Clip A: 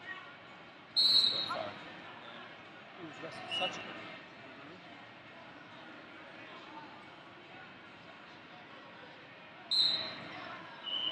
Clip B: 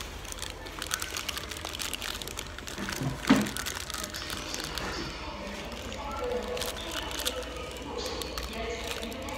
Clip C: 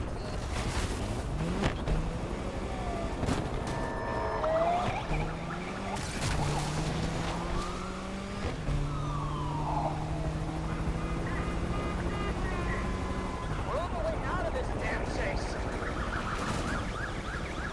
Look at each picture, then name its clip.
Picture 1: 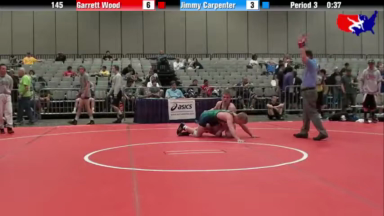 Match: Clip A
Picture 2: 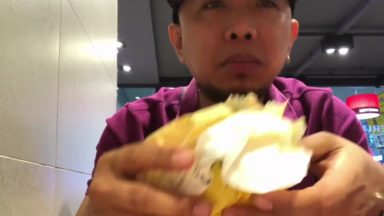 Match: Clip B